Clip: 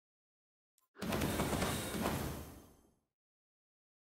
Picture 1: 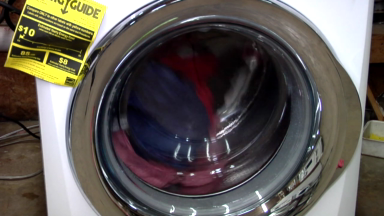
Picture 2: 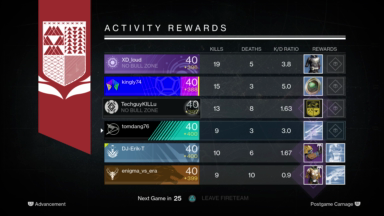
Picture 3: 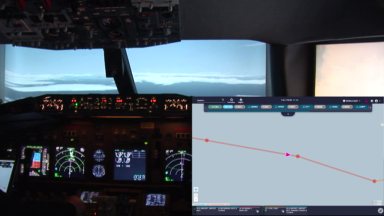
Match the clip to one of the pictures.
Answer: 2